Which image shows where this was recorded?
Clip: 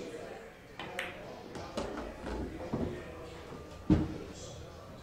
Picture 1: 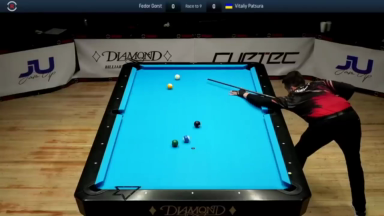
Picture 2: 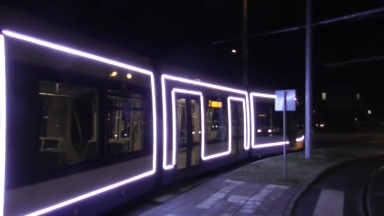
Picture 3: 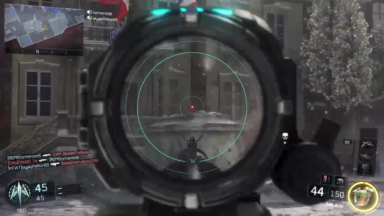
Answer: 1